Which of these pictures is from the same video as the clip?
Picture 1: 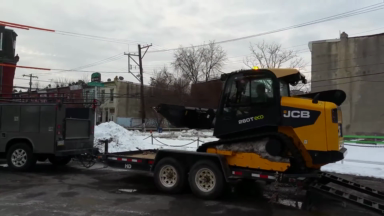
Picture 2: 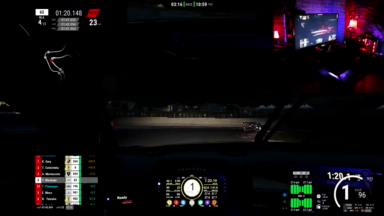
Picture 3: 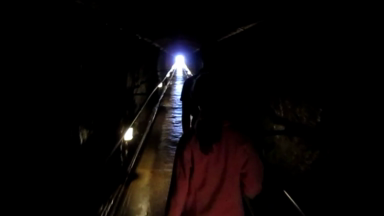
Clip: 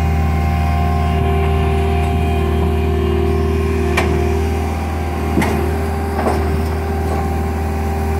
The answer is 1